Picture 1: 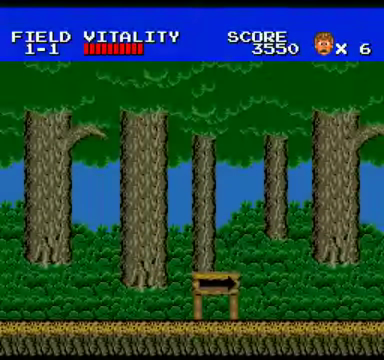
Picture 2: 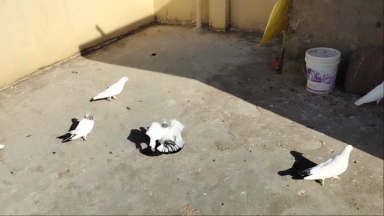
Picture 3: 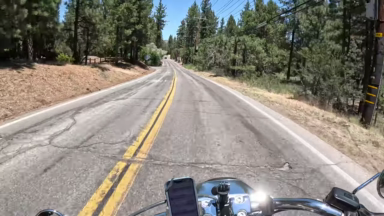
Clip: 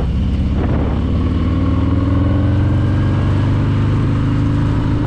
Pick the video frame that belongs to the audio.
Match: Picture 3